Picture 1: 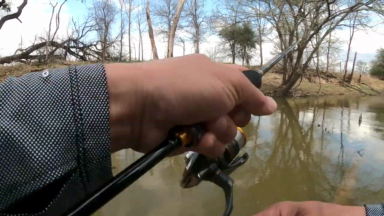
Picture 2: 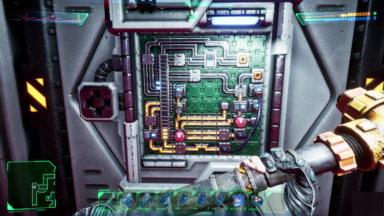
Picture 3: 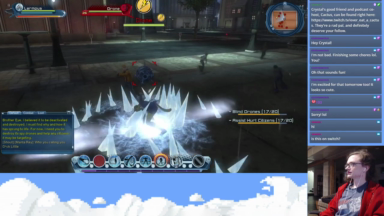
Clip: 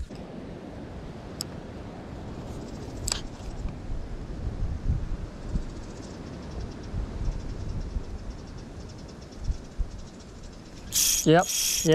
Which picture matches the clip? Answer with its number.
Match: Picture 1